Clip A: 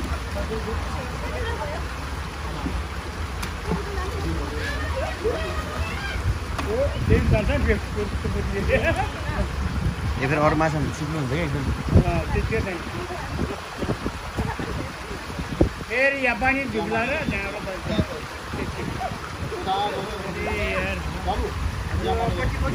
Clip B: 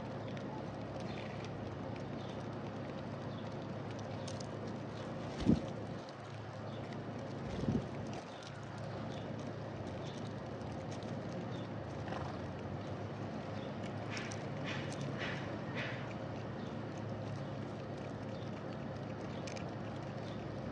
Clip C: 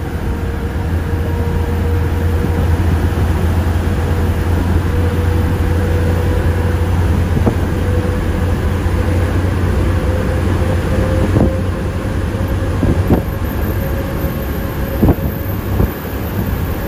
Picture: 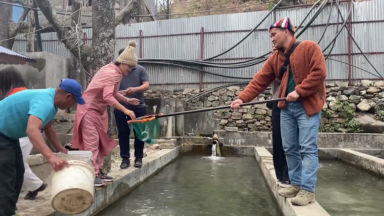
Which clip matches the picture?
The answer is A